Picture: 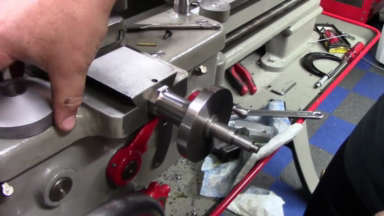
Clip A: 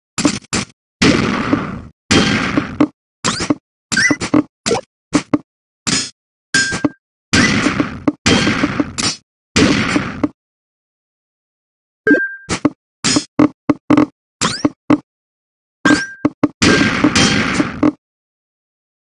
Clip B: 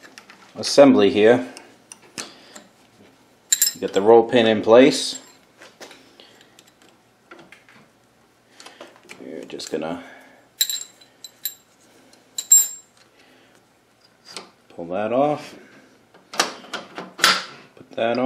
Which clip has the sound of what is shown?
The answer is B